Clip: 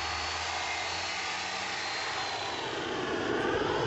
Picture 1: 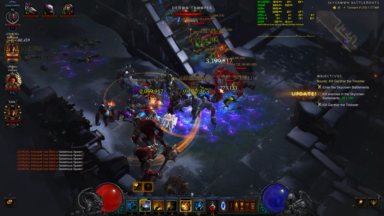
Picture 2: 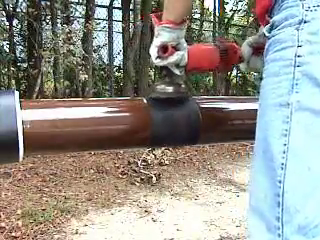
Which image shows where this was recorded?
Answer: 2